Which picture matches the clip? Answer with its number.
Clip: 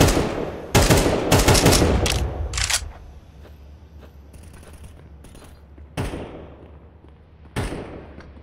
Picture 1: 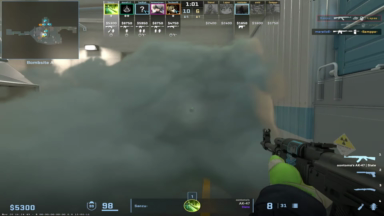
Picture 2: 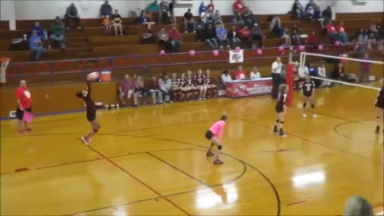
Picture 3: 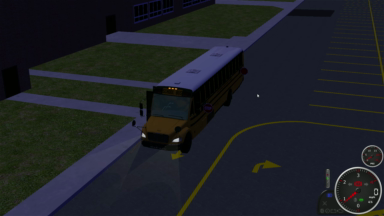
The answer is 1